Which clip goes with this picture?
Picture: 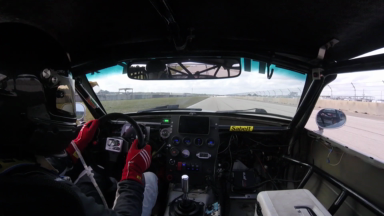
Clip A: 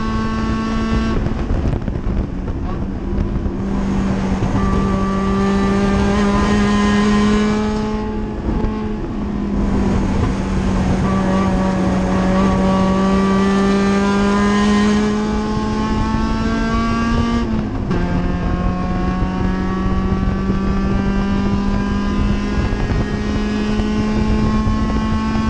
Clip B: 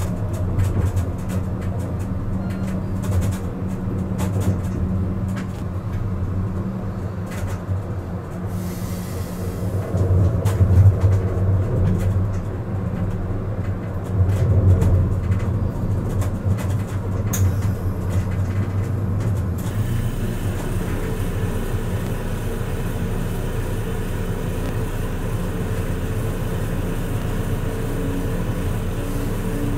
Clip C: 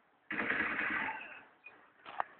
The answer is A